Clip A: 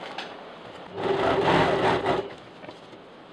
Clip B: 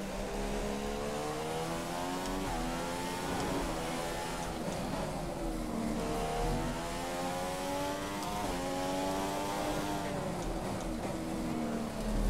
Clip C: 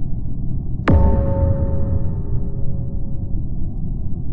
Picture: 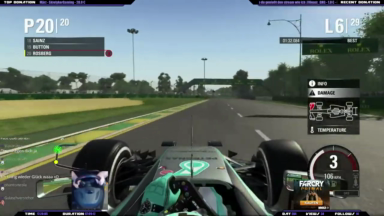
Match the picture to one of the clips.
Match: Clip B